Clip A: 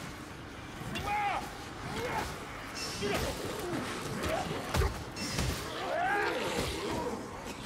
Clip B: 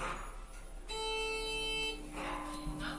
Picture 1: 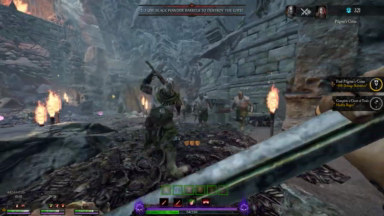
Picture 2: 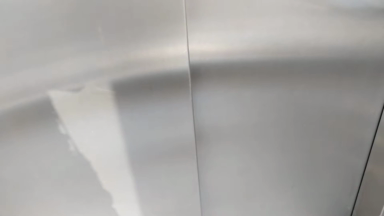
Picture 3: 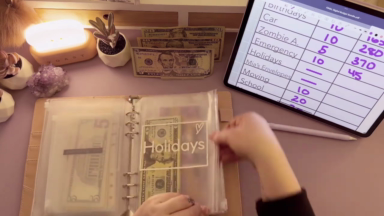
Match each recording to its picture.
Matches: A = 1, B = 2